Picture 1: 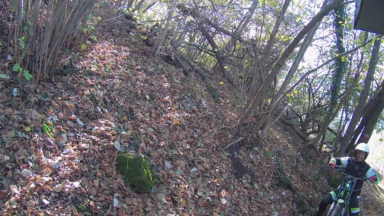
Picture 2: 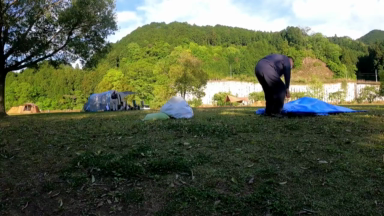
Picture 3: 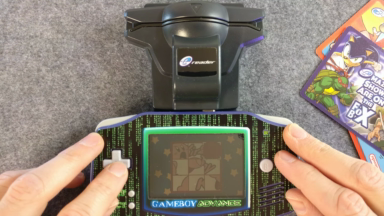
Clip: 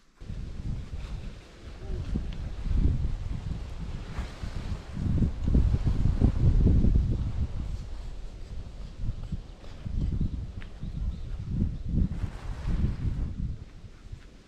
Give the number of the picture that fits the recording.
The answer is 2